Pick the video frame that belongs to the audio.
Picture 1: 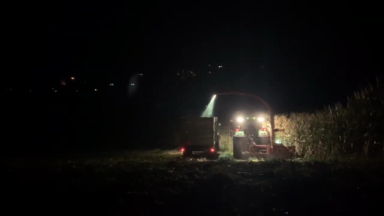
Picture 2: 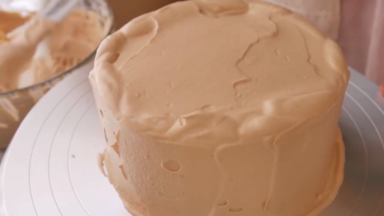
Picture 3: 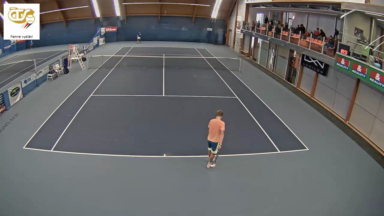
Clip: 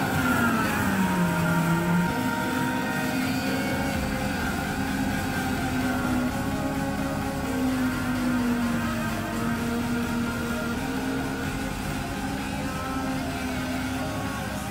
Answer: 1